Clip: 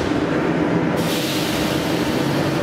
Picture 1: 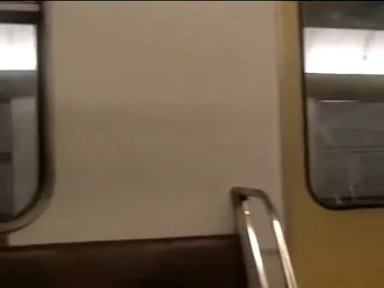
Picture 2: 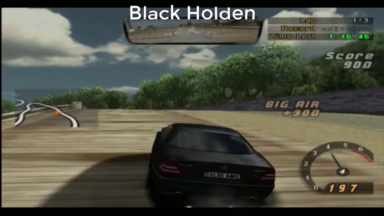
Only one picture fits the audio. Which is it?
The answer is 1